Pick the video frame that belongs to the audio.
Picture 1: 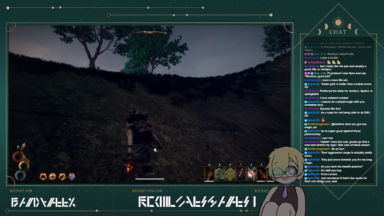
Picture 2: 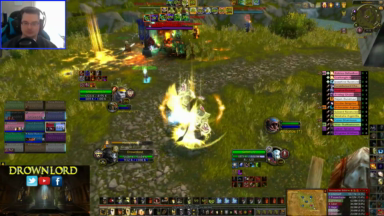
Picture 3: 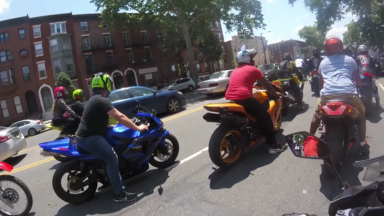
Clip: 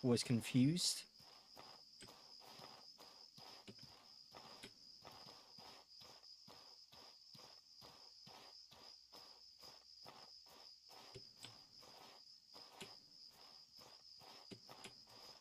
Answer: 1